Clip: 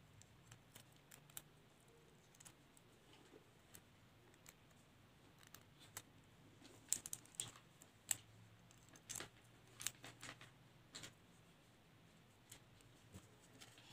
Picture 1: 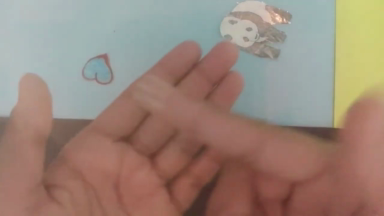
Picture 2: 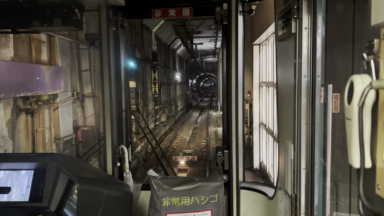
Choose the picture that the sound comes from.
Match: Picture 1